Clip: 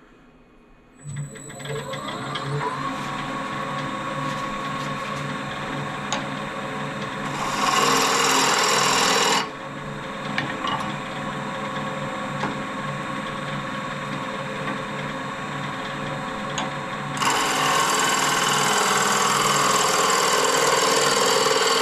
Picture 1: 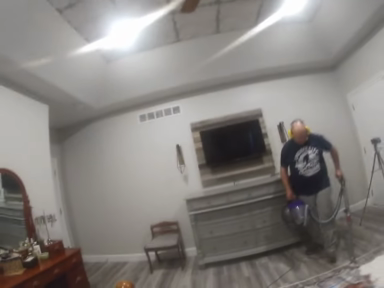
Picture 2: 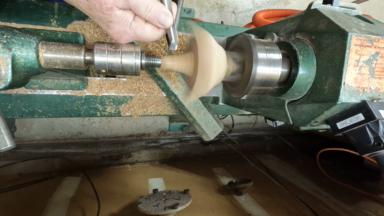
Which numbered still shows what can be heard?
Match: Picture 2